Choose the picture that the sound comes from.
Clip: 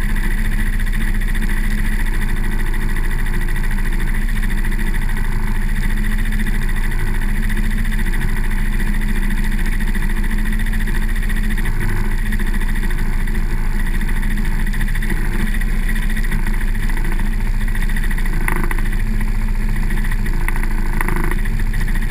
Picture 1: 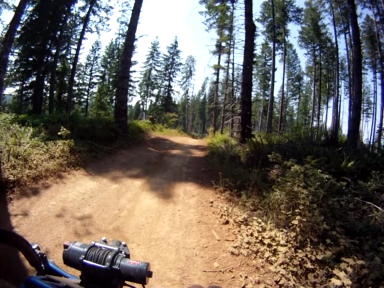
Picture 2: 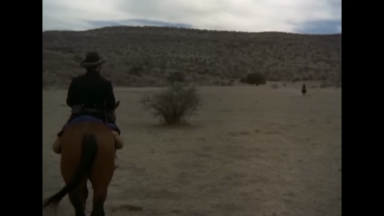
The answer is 1